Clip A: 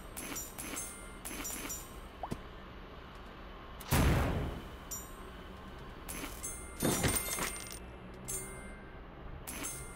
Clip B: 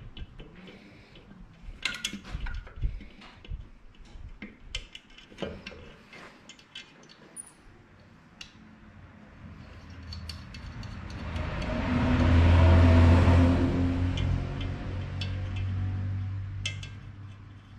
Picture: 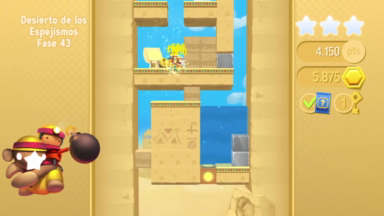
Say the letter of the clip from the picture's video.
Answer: A